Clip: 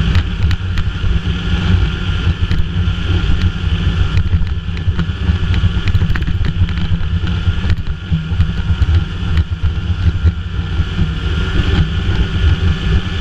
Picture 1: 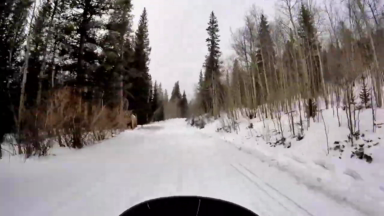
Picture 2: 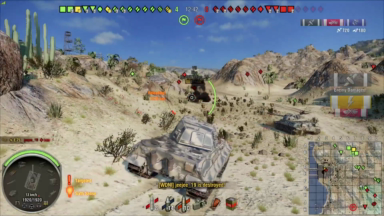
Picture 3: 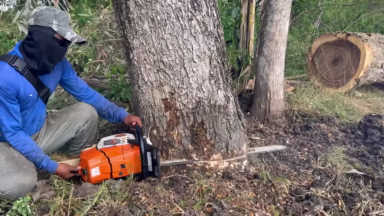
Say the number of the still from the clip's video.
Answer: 1